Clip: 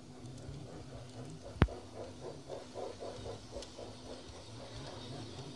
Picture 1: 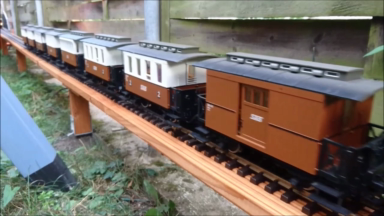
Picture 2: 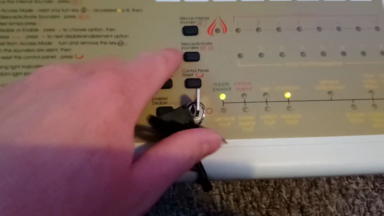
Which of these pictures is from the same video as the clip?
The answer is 1